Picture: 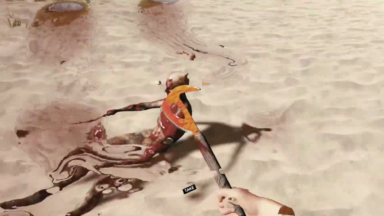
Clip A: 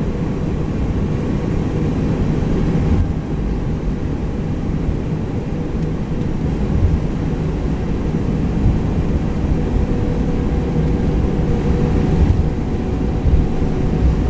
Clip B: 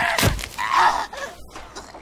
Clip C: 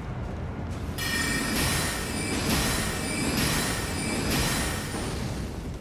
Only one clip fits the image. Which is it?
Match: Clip B